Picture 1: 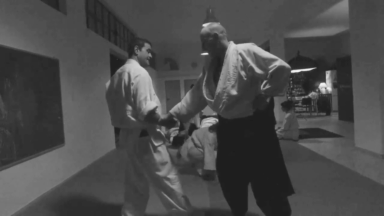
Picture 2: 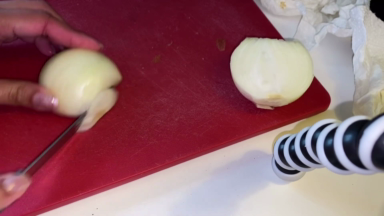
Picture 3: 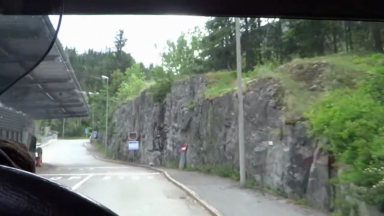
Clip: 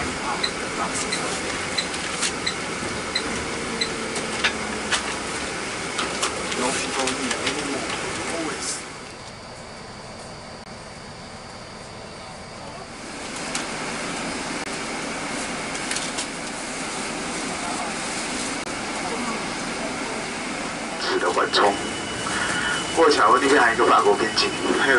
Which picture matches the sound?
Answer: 3